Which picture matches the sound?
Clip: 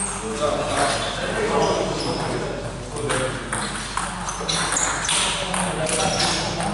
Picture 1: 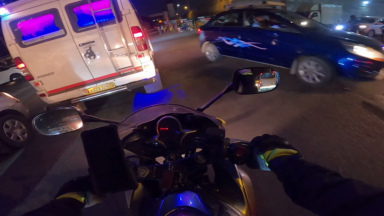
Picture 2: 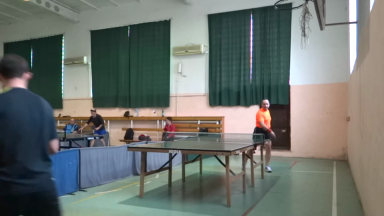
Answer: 2